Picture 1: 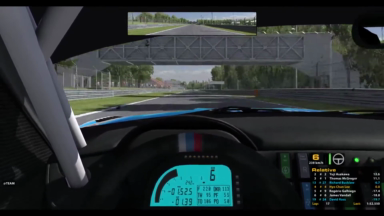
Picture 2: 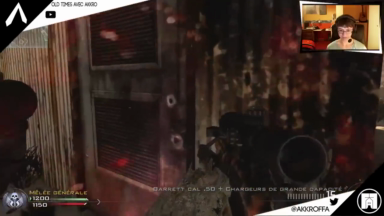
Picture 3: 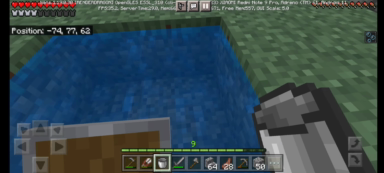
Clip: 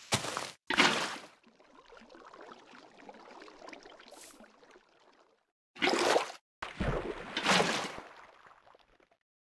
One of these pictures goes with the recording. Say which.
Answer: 3